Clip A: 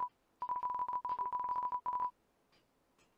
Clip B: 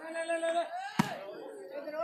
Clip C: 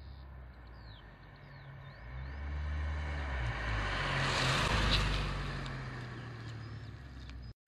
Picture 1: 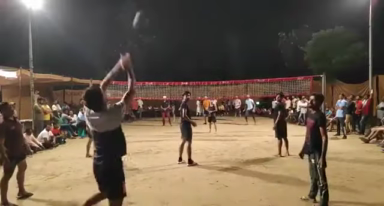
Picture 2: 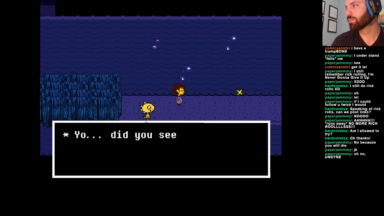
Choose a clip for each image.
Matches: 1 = B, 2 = A